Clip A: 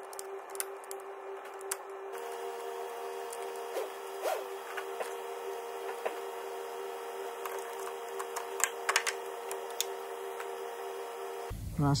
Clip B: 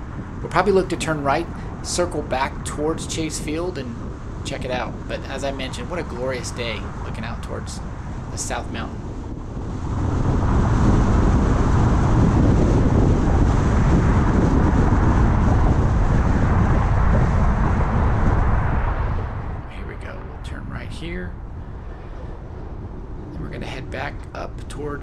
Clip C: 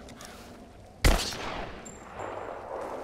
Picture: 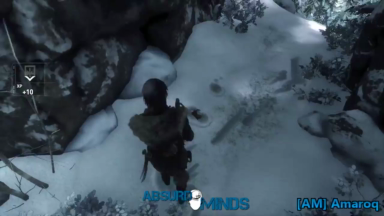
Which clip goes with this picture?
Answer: C